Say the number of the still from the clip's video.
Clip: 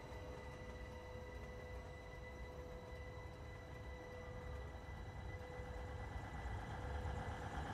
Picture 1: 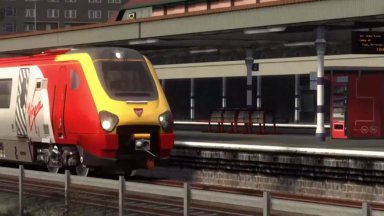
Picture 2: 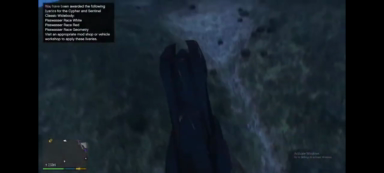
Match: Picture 1